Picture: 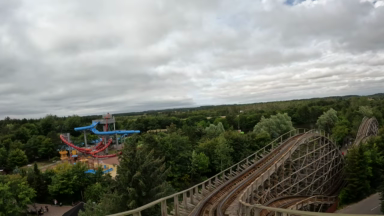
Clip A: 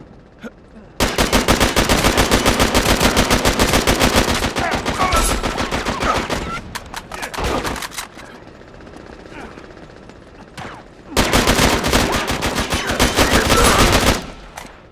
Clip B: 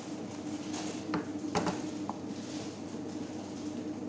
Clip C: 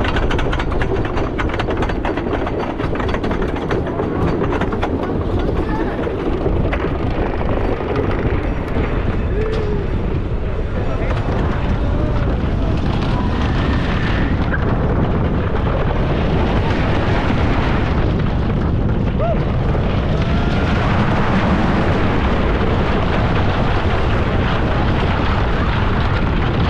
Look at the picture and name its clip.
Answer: C